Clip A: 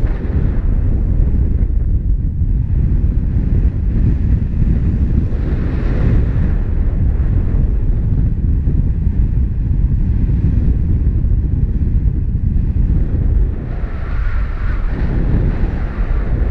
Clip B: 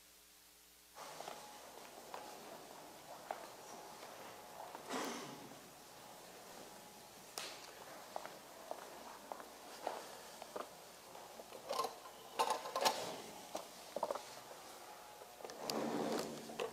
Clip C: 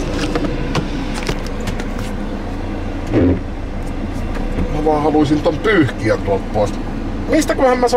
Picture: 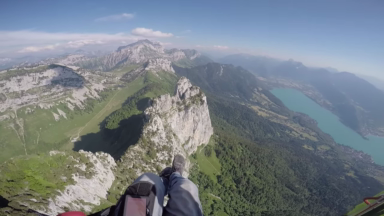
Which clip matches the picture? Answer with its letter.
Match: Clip A